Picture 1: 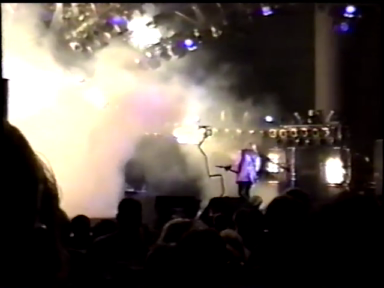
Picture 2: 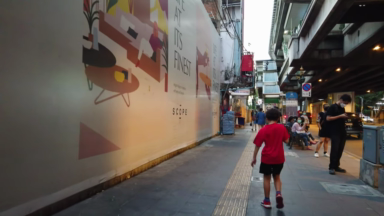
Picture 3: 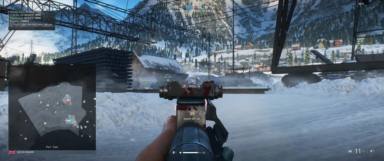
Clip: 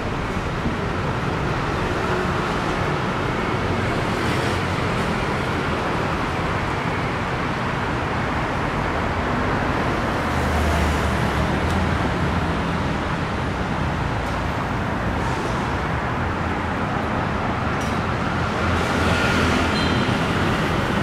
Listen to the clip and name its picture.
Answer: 2